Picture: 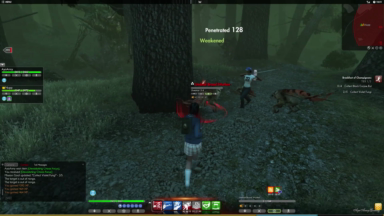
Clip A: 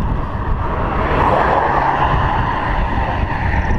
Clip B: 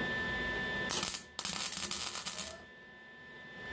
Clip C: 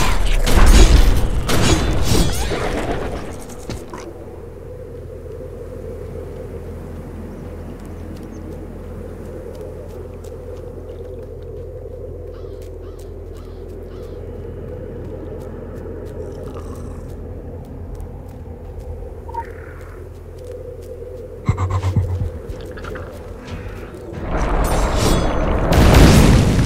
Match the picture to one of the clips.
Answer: C